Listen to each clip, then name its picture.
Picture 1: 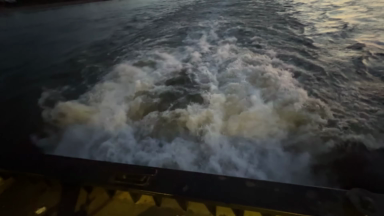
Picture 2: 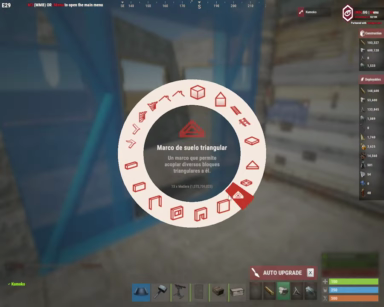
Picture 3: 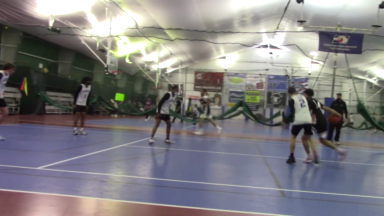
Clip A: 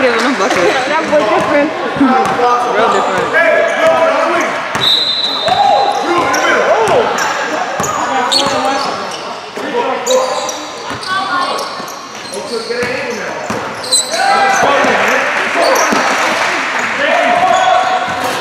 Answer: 3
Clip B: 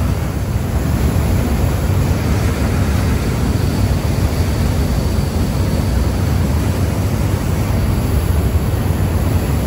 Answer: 1